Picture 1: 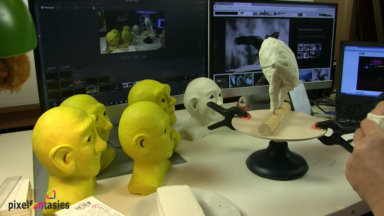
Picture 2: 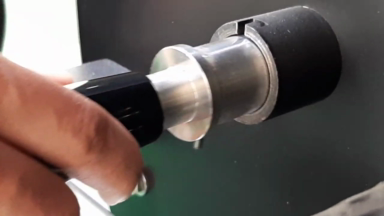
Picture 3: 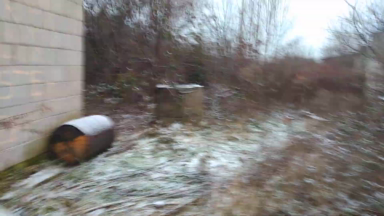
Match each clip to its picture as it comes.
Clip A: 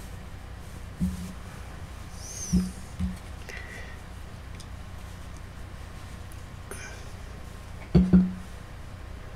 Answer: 1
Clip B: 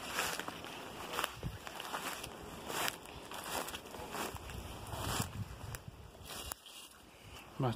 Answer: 3